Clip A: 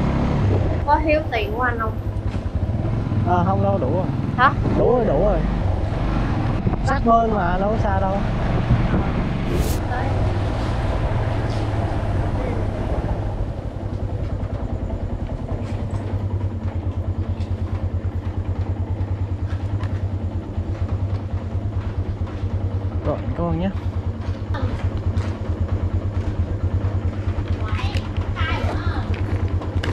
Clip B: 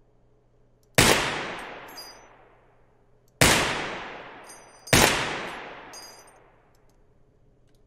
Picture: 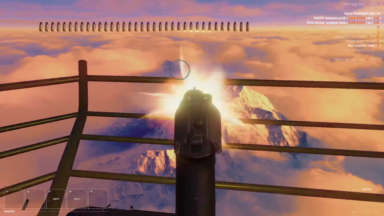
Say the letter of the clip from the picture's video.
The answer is B